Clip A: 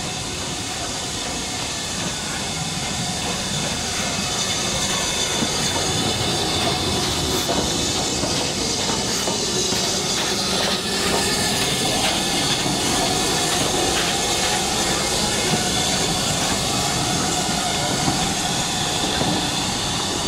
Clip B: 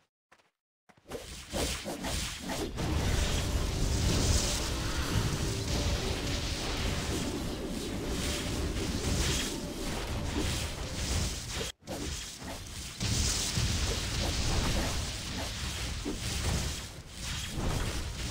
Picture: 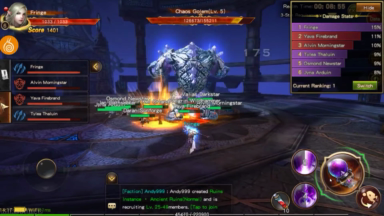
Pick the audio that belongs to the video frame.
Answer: B